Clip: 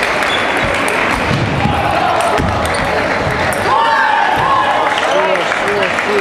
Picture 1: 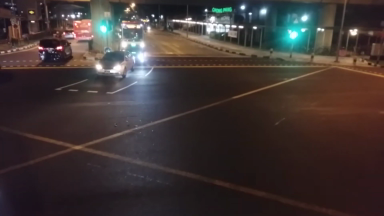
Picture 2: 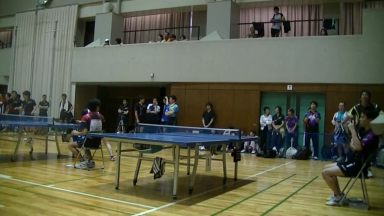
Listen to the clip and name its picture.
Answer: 2